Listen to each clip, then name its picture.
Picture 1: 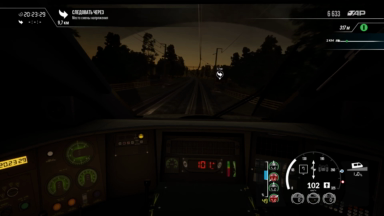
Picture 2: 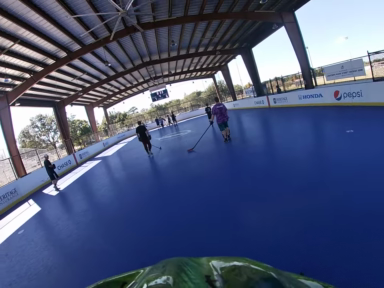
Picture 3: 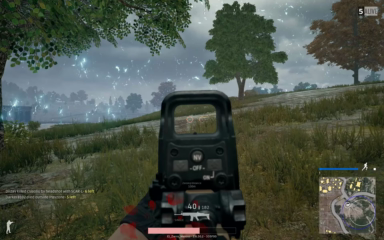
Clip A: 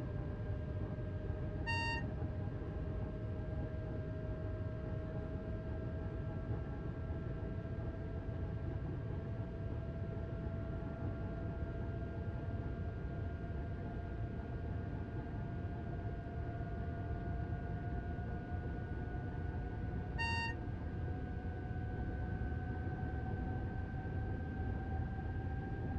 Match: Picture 1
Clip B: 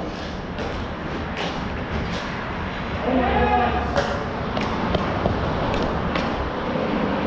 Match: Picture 2